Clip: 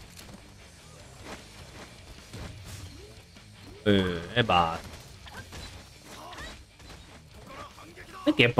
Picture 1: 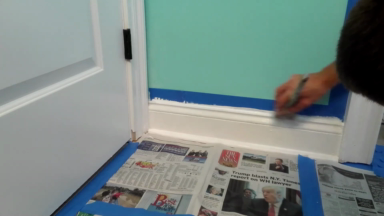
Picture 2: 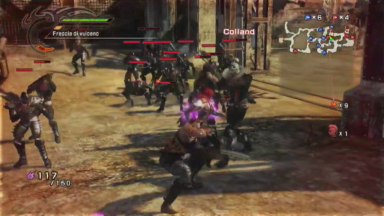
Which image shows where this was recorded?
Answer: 2